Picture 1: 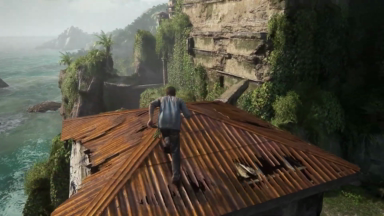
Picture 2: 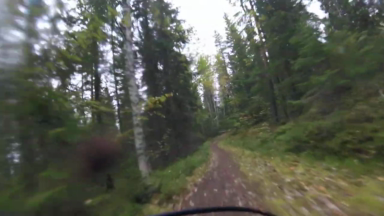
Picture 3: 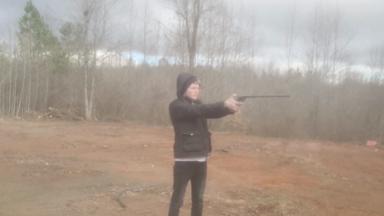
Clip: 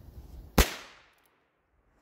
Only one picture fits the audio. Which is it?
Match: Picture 3